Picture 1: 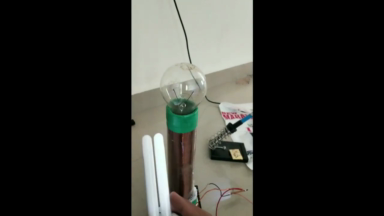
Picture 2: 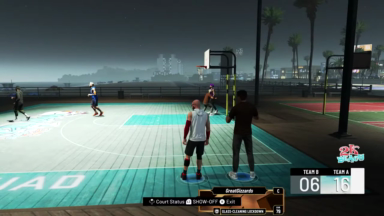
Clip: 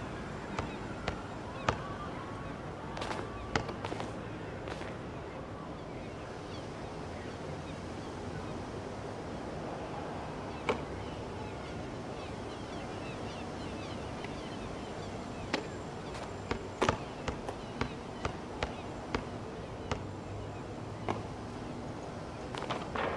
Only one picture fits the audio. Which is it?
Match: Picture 2